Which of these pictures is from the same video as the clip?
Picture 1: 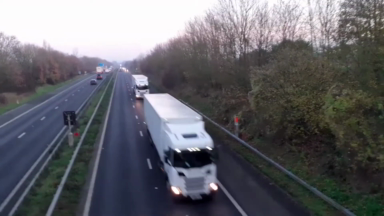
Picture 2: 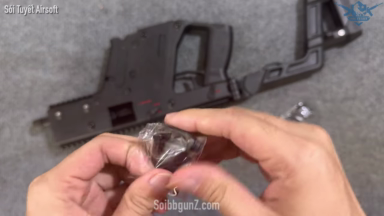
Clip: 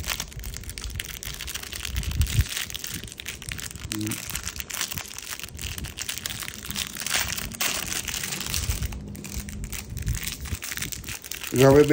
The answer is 2